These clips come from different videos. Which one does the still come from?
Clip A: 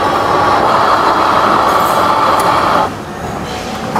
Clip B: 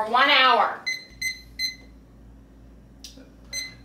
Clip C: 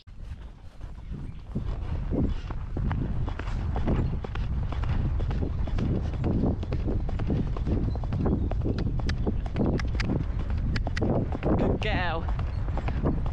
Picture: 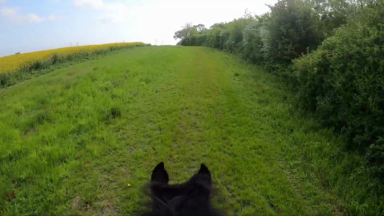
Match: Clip C